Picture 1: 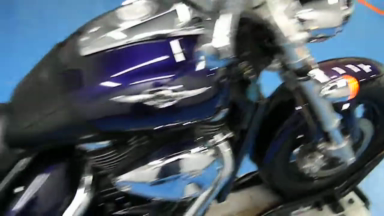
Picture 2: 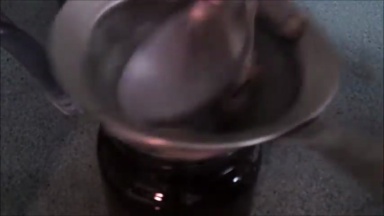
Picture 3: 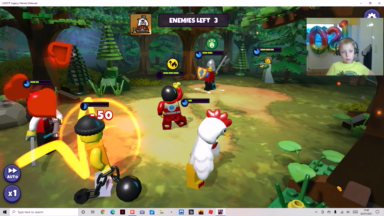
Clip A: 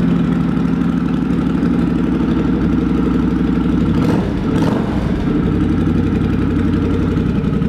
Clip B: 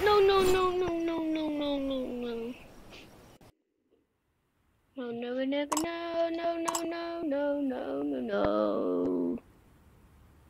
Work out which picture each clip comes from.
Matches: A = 1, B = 3